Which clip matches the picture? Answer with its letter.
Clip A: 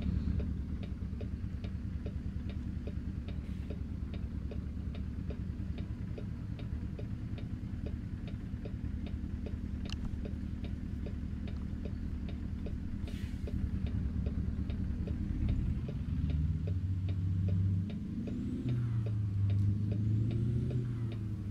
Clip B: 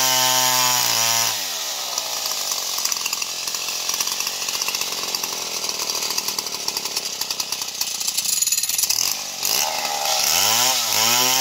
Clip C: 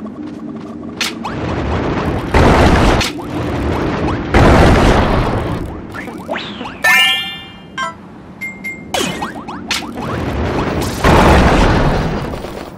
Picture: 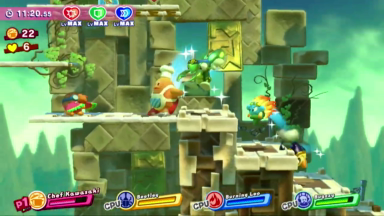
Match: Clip C